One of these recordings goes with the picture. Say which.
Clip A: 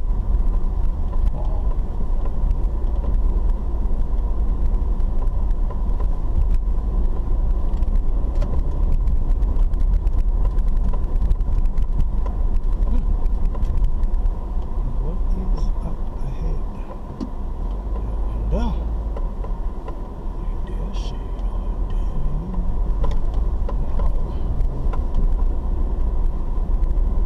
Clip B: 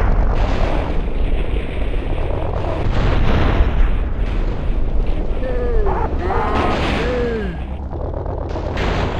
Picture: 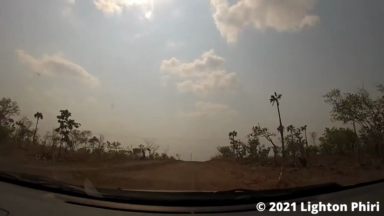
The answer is A